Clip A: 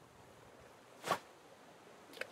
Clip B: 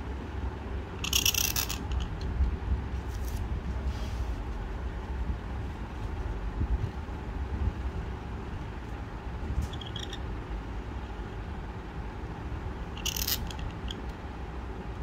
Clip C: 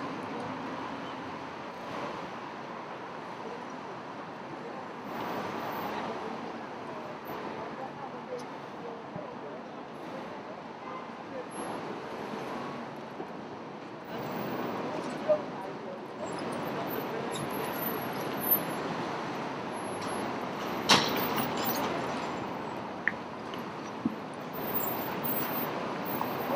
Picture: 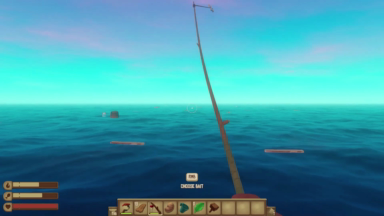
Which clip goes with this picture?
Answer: A